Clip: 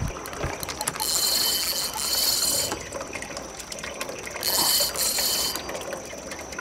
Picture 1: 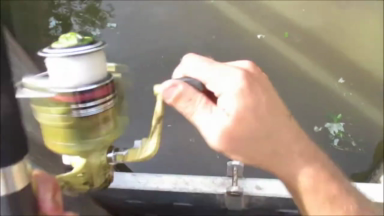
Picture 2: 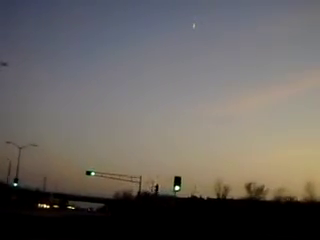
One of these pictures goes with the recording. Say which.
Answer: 1